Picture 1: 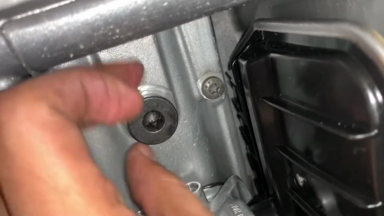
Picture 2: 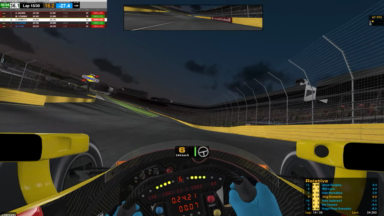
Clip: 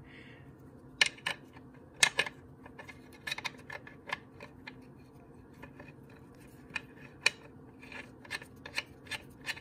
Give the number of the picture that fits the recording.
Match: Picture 1